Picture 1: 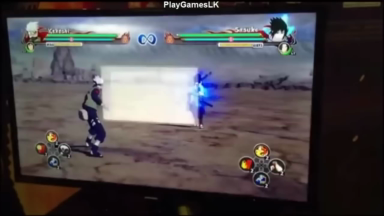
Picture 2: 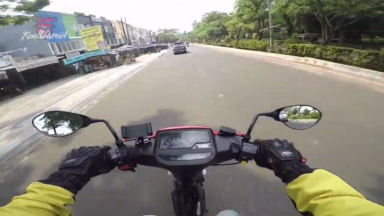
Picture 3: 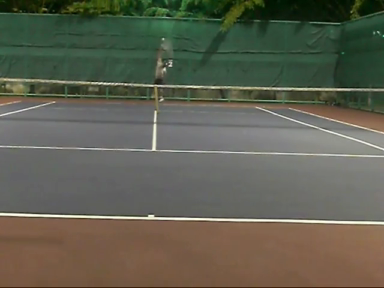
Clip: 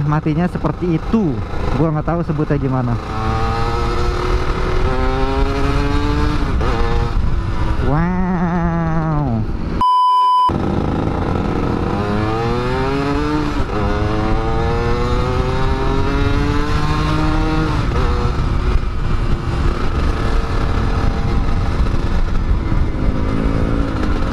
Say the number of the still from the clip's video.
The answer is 2